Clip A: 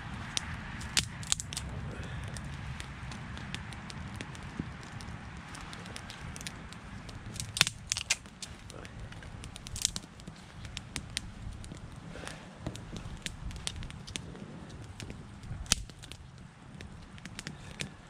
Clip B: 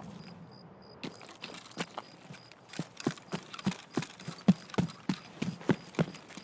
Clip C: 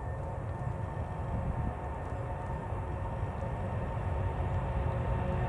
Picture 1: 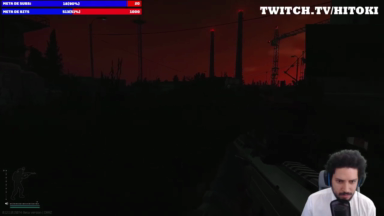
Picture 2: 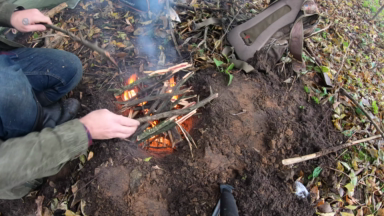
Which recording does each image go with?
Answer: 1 B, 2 A